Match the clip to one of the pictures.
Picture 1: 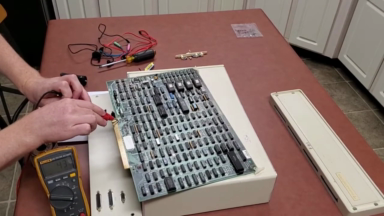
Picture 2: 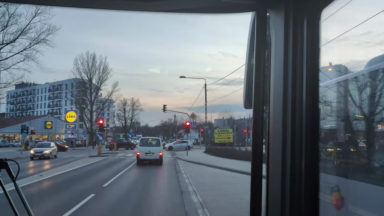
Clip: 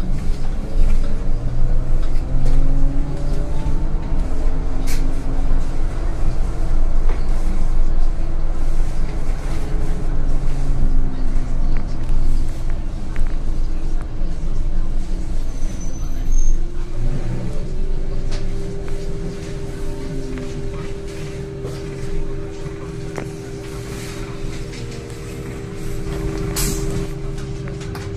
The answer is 2